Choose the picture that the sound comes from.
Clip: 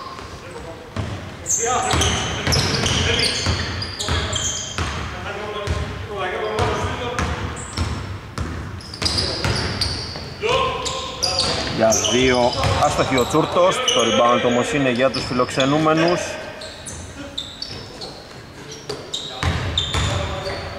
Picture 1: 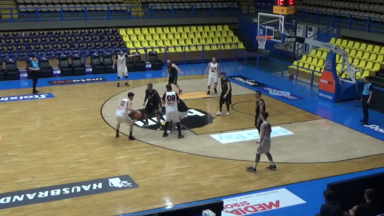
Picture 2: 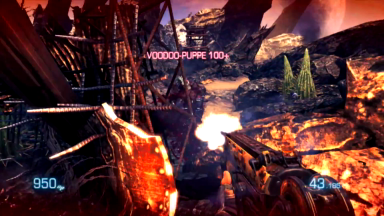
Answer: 1